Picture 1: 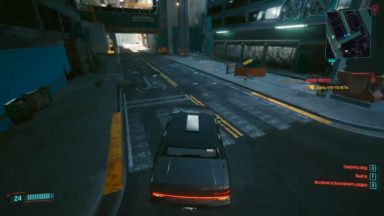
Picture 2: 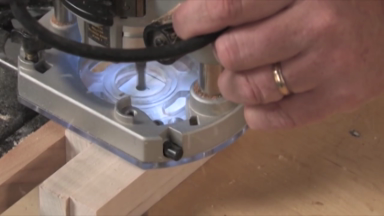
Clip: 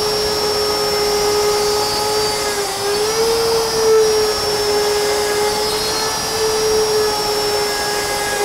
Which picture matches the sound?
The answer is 2